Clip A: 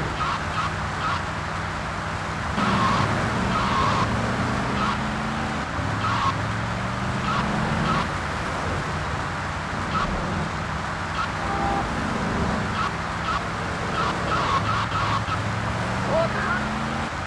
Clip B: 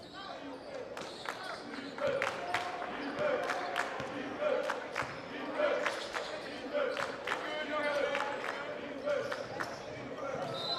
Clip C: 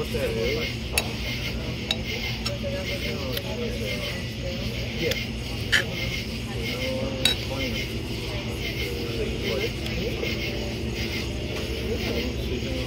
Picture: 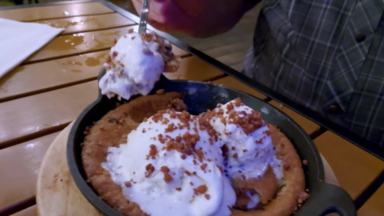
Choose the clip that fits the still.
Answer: C